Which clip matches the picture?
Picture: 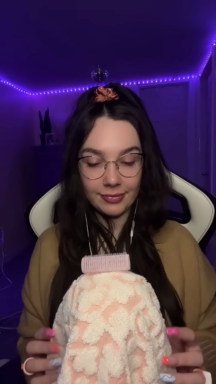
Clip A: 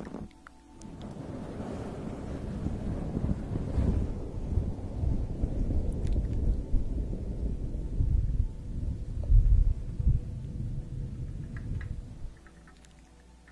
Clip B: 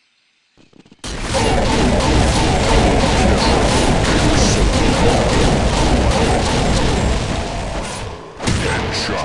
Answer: A